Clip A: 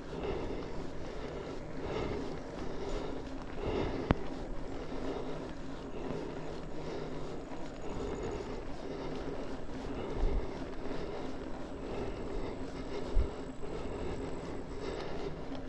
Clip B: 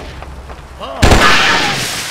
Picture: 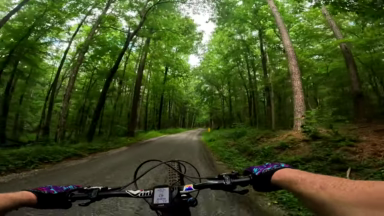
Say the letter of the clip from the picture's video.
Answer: A